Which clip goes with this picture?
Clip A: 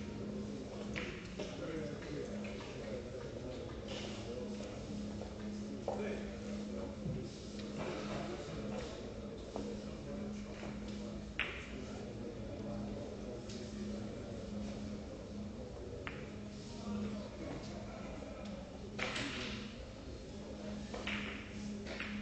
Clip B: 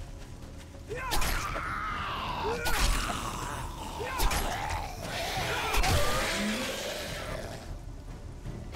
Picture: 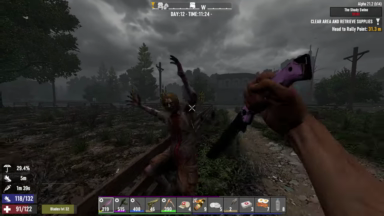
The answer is B